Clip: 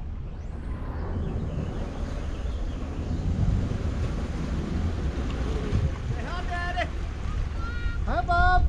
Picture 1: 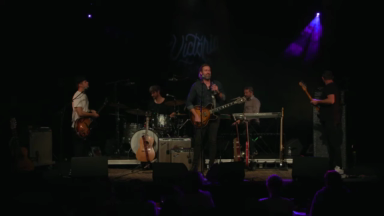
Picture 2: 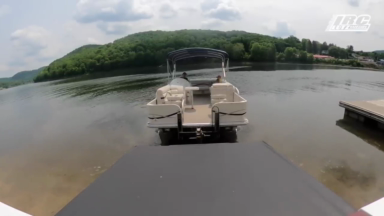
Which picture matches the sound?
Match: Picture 2